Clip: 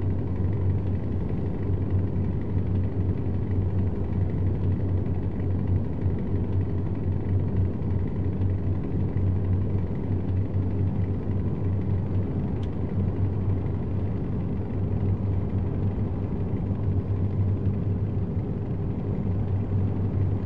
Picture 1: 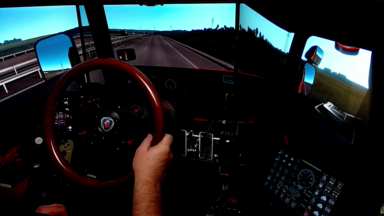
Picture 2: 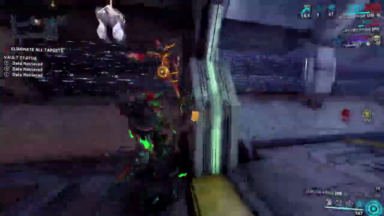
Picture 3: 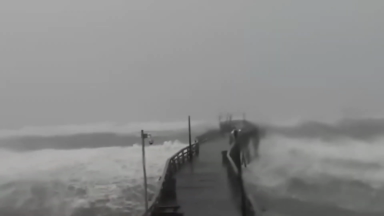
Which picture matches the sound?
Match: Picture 1